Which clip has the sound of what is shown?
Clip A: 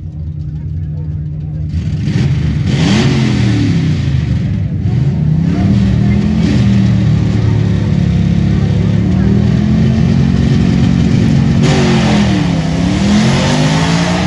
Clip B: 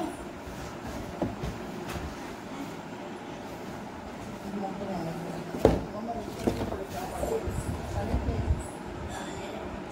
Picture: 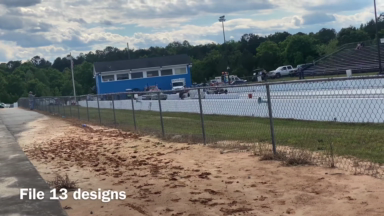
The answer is A